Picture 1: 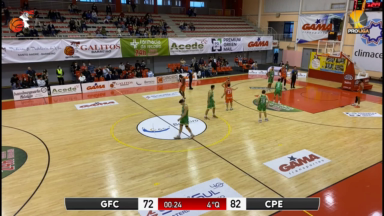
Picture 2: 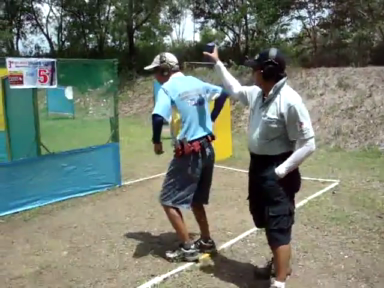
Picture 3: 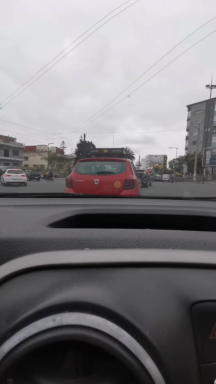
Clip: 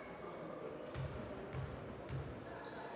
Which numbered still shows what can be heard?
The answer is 1